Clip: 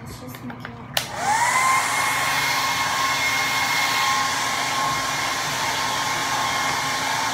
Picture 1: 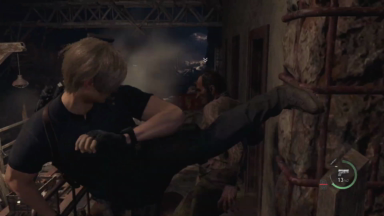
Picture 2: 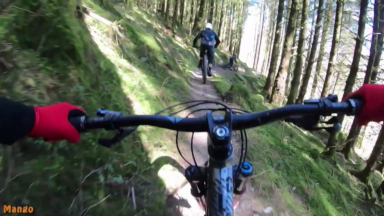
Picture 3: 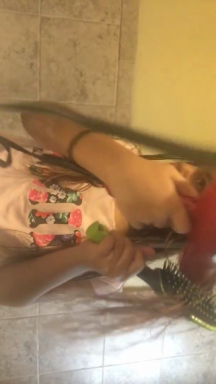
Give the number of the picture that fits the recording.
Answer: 3